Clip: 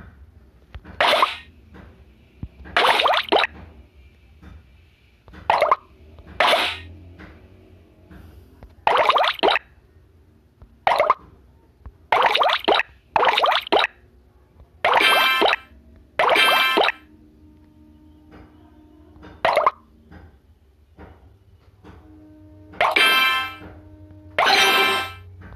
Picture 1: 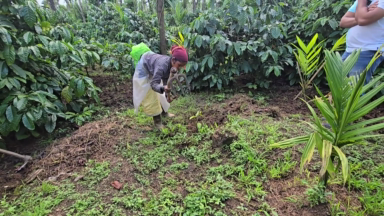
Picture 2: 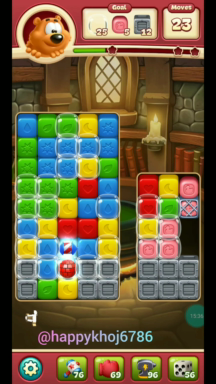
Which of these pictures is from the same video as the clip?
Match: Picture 2